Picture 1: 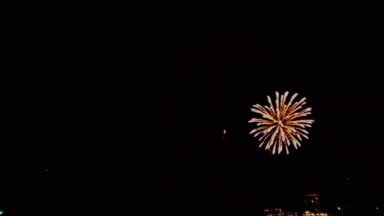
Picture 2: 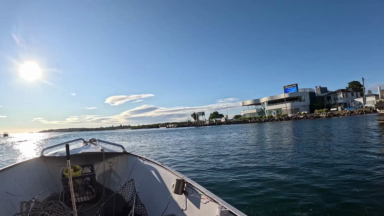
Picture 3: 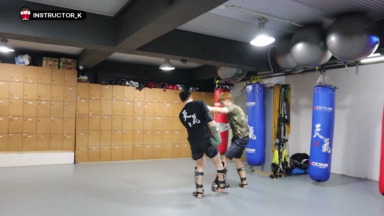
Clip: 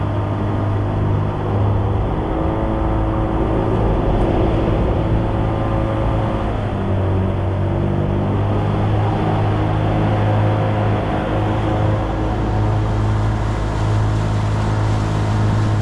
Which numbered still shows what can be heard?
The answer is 2